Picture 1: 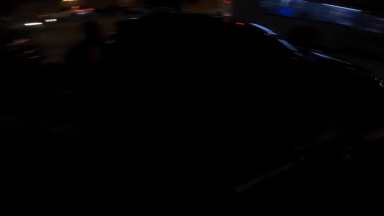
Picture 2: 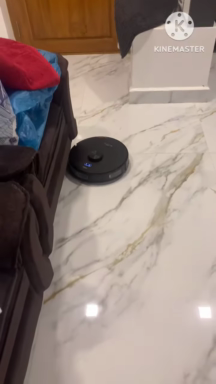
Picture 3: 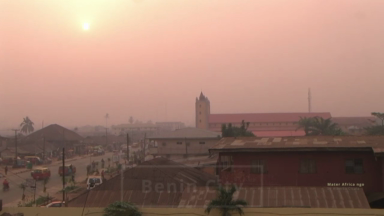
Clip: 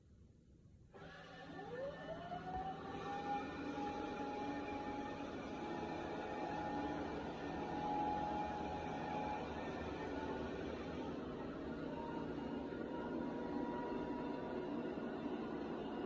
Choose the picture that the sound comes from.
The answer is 2